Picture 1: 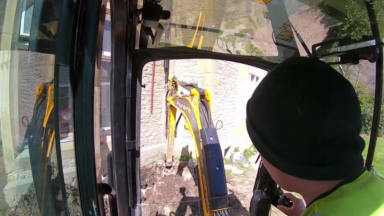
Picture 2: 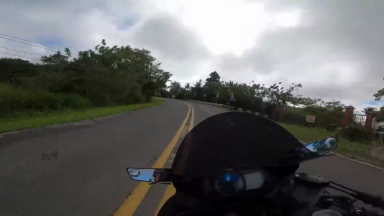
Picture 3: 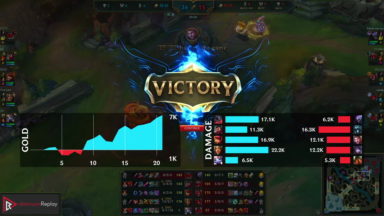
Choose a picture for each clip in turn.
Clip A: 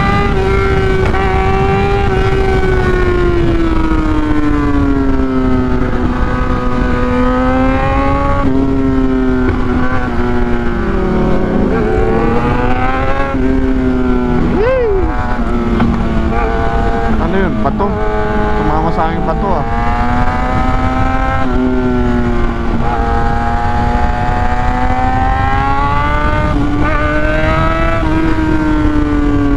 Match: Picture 2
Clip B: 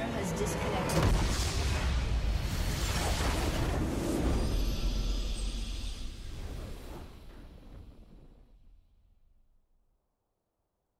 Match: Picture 3